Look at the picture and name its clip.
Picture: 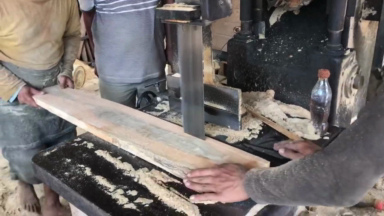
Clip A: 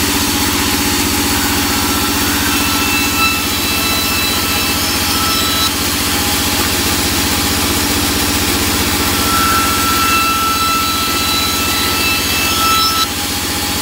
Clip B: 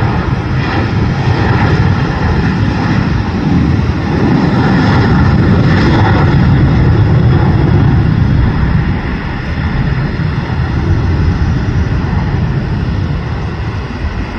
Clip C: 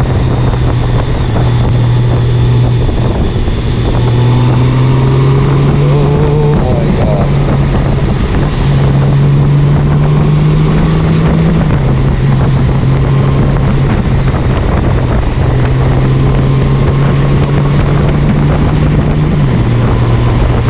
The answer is A